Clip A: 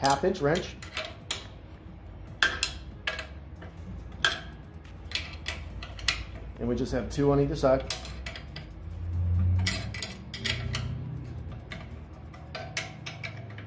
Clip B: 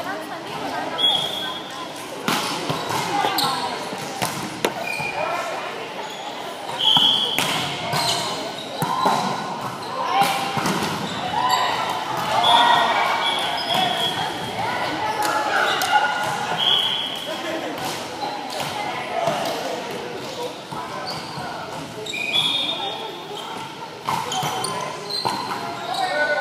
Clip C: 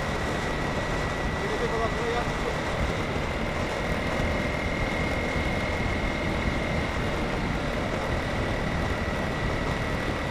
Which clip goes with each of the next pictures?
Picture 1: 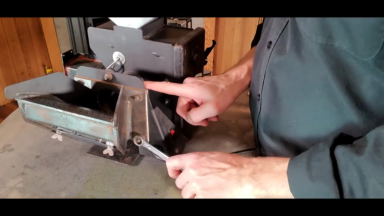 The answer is A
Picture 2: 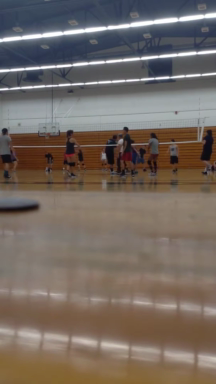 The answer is B